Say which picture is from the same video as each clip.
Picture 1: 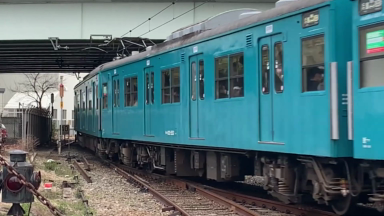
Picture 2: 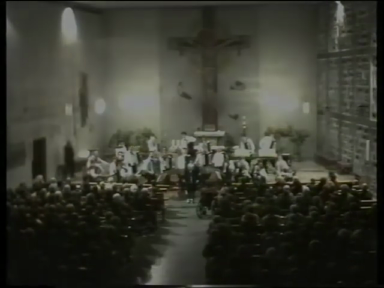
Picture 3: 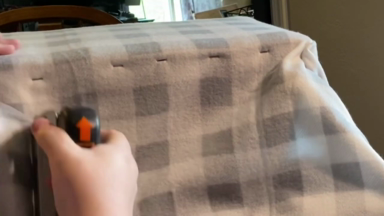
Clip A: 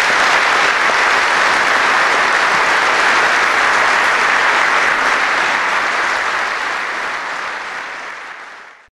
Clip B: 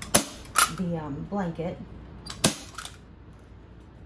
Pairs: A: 2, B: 3